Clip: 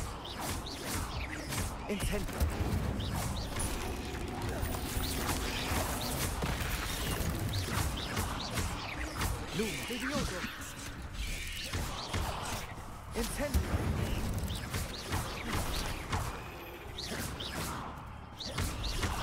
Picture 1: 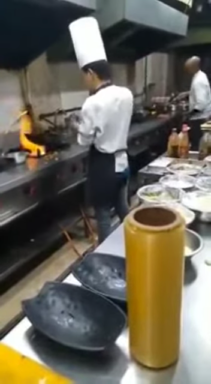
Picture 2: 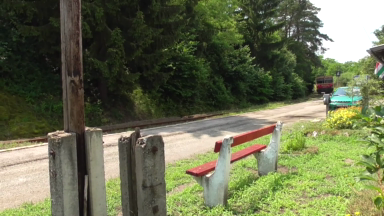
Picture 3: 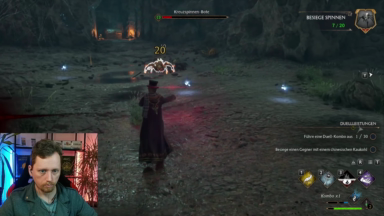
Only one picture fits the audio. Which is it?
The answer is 3